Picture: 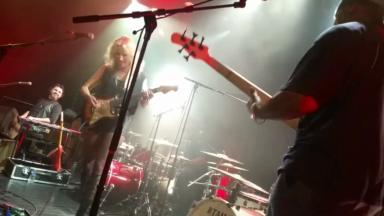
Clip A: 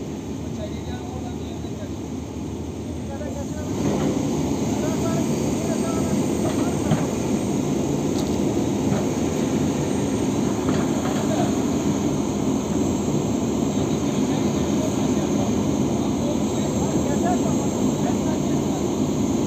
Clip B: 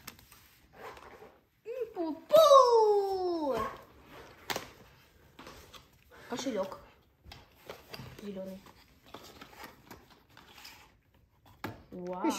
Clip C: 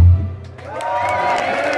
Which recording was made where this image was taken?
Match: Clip C